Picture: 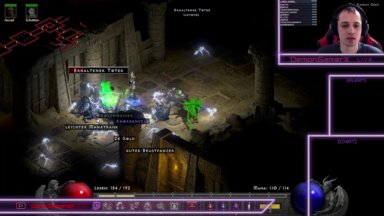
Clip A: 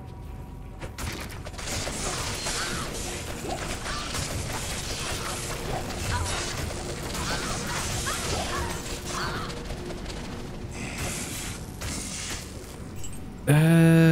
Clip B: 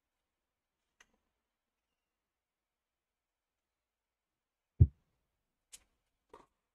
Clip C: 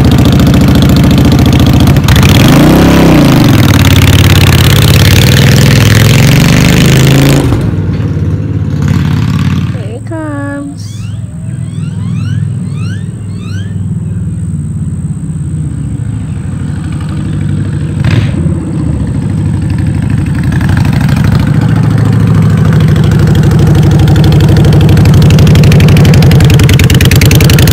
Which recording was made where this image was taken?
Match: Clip A